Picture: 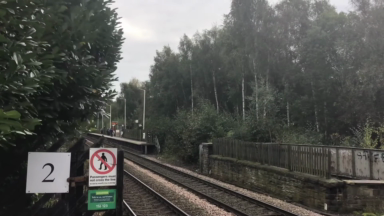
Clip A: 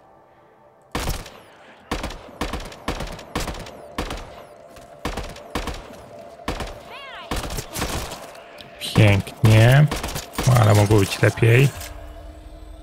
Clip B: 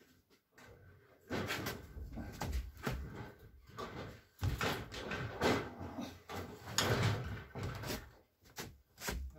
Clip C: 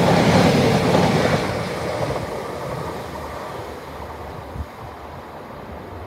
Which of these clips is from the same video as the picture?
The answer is C